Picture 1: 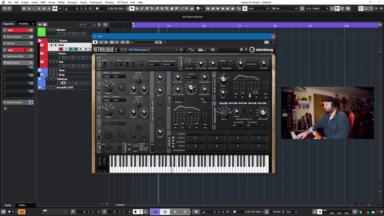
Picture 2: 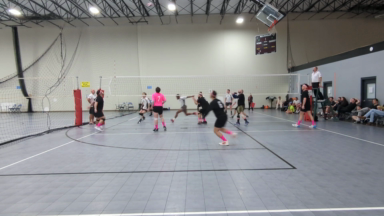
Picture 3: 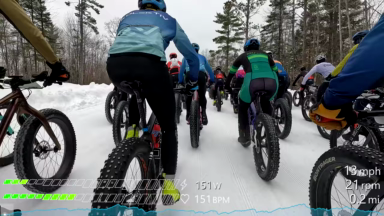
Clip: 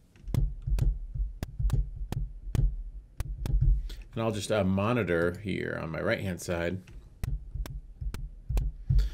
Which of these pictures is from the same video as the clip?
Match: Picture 1